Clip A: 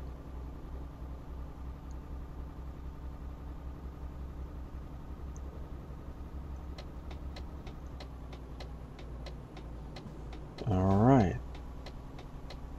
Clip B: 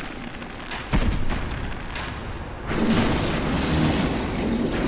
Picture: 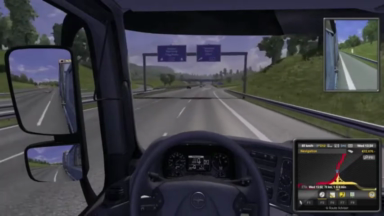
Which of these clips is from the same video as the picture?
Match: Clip A